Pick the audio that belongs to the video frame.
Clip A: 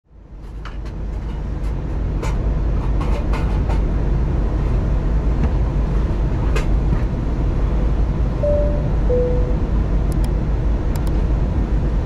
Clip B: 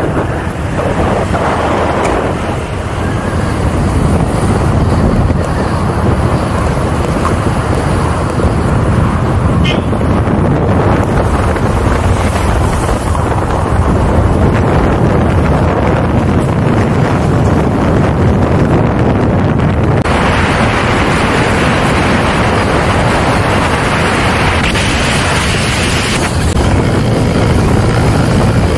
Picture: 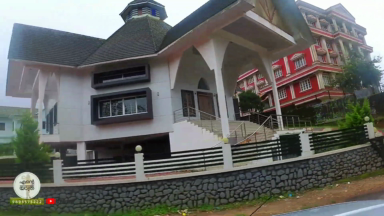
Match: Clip B